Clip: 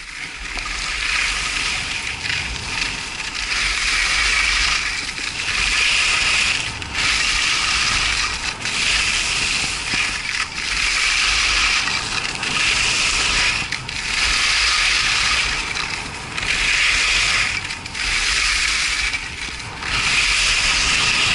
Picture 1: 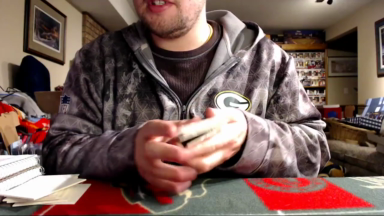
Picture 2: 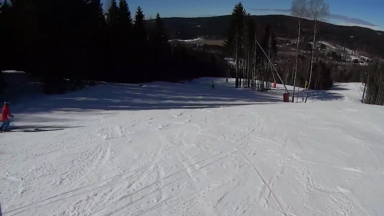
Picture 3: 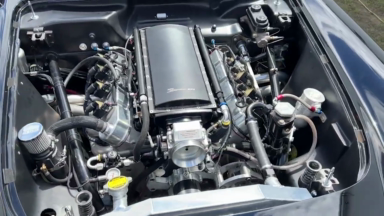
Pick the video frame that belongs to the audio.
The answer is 2